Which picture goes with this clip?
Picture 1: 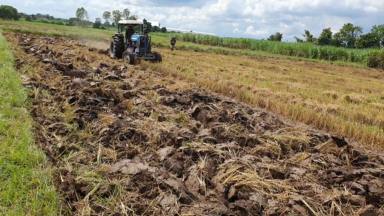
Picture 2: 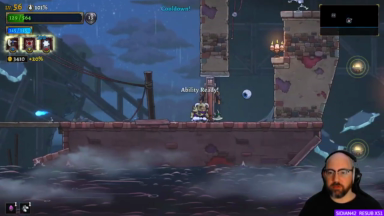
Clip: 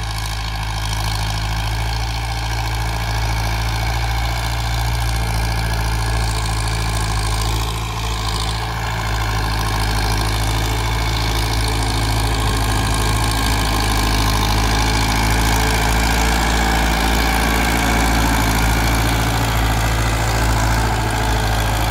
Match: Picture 1